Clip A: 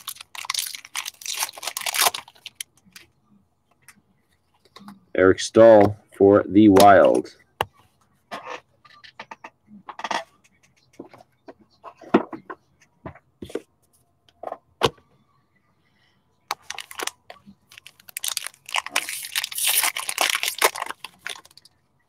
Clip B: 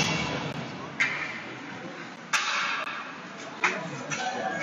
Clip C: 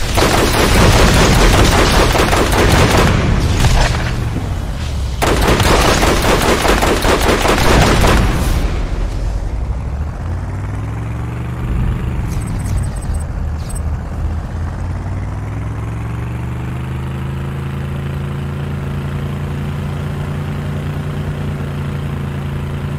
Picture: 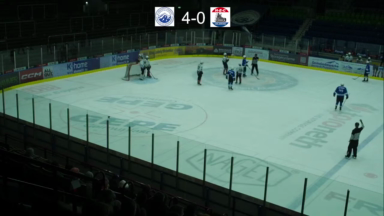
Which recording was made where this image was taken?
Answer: B